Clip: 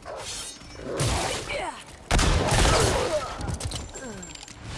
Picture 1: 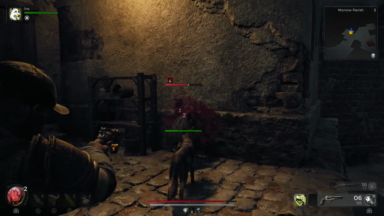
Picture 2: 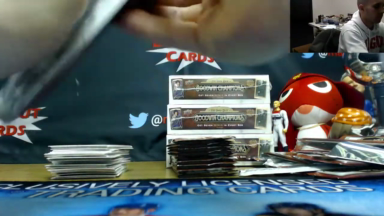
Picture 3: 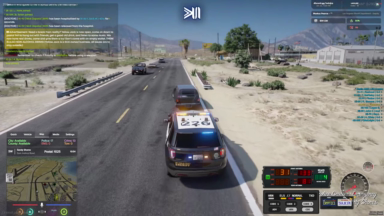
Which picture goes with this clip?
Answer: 1